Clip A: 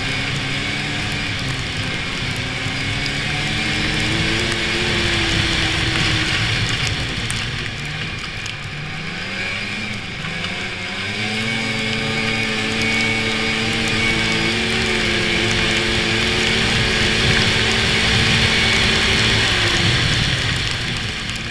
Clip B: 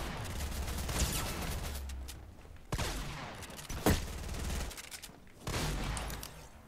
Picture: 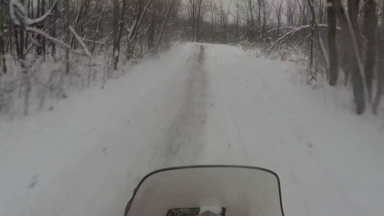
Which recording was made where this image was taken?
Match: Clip A